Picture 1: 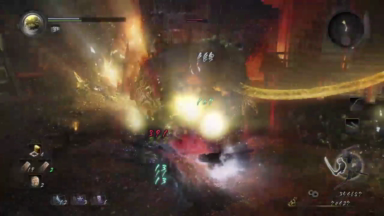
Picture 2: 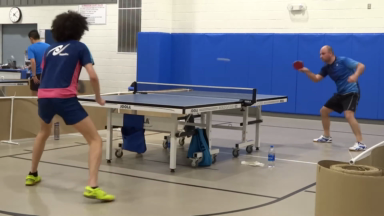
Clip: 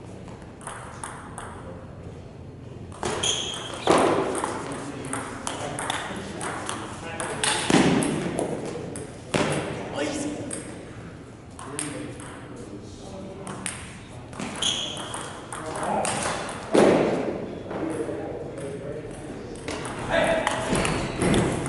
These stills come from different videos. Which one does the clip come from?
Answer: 2